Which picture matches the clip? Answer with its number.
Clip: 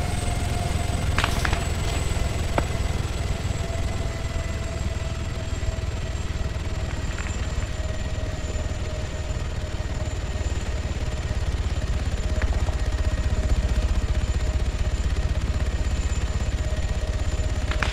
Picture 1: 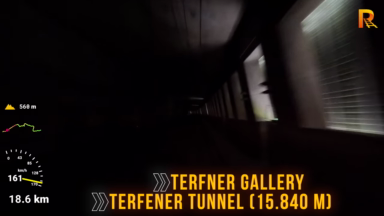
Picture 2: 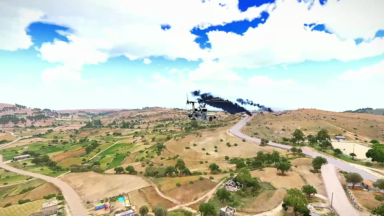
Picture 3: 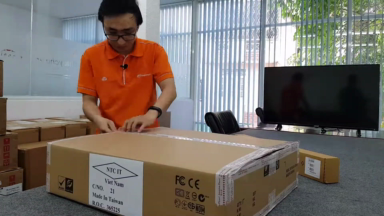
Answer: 2